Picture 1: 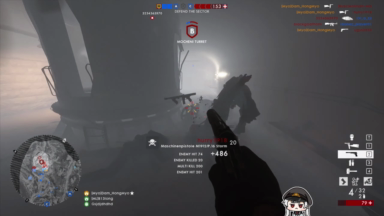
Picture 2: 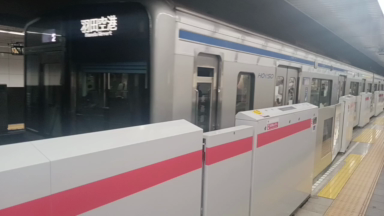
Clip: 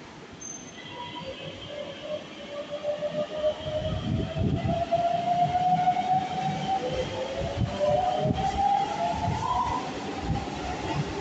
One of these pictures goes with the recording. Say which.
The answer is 2